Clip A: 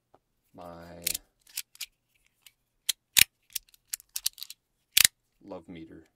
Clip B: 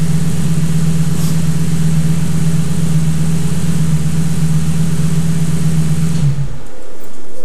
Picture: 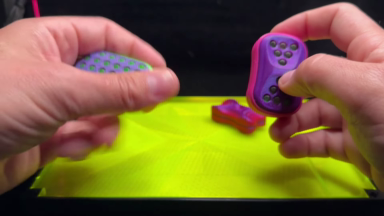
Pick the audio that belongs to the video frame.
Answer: A